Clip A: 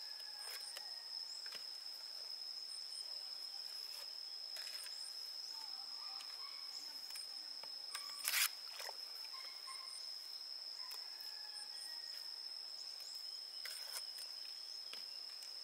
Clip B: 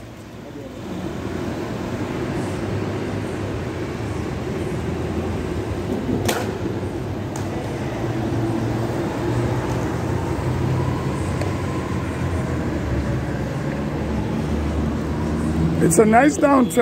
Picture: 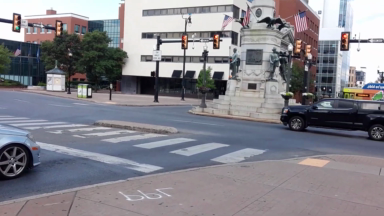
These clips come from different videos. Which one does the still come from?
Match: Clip B